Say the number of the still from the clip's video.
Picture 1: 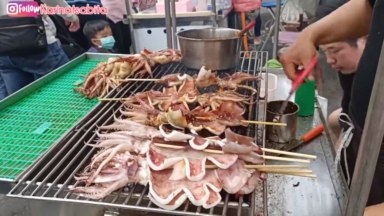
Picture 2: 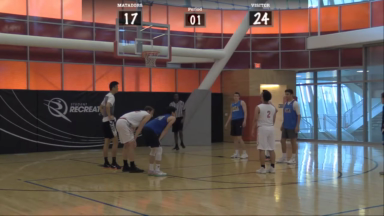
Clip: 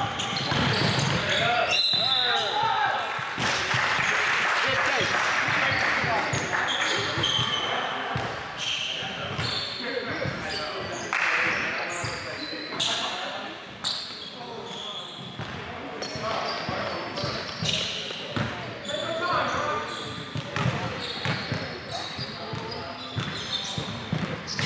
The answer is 2